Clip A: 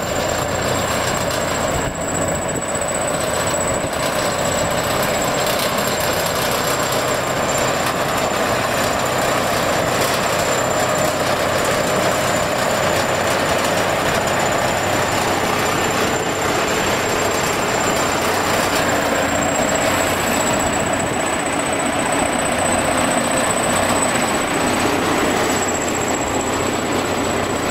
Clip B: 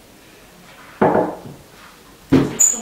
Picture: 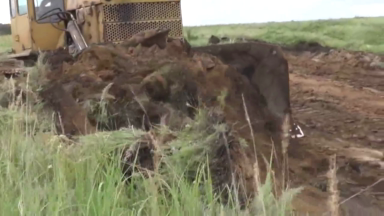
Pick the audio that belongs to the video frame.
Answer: A